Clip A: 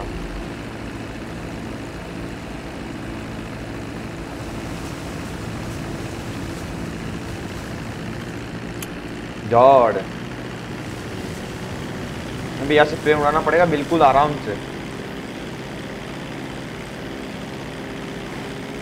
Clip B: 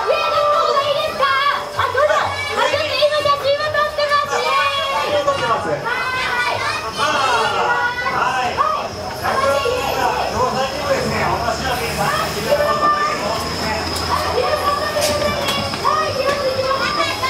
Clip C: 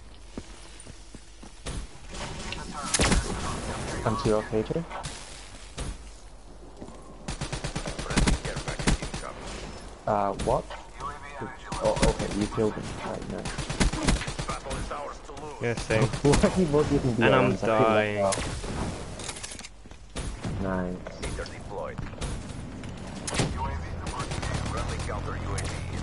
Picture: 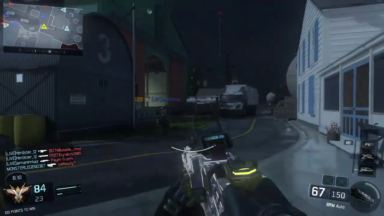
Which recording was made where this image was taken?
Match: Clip C